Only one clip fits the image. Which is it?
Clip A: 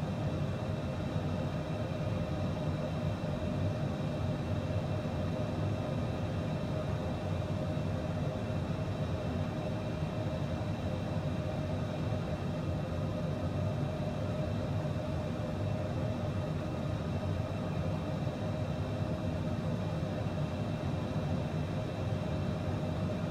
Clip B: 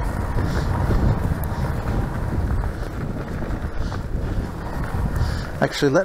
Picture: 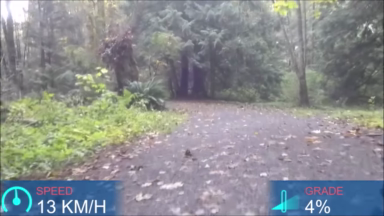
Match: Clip B